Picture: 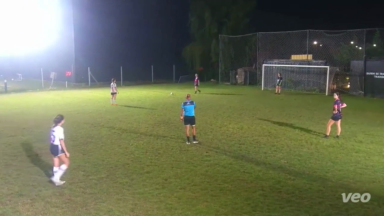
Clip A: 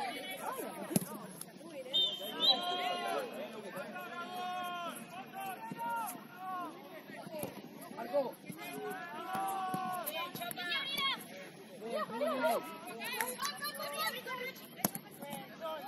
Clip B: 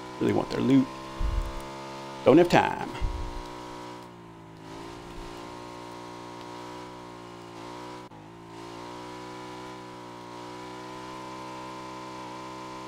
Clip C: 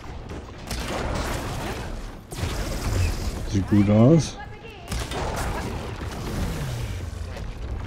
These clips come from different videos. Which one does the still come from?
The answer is A